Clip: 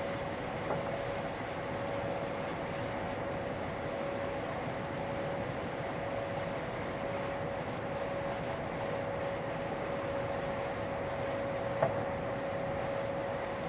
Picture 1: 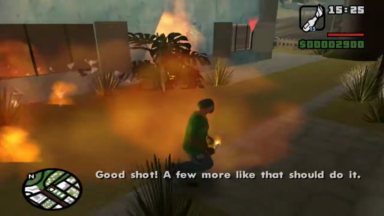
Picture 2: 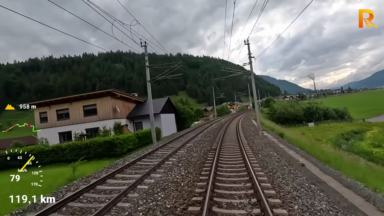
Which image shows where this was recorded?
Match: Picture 2